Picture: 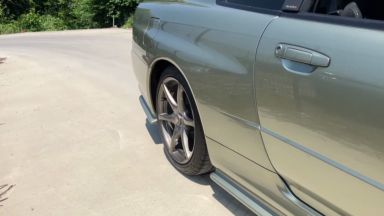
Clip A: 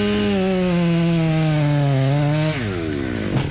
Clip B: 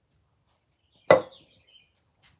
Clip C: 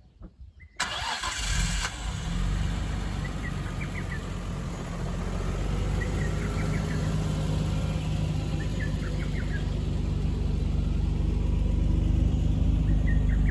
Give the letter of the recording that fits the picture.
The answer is C